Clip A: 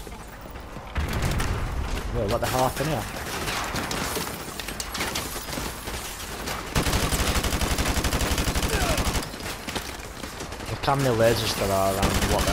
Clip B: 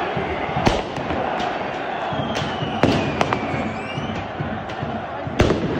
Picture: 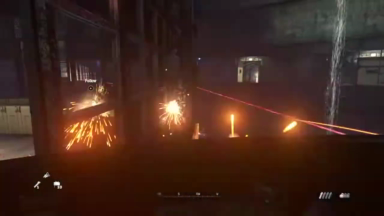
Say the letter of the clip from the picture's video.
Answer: A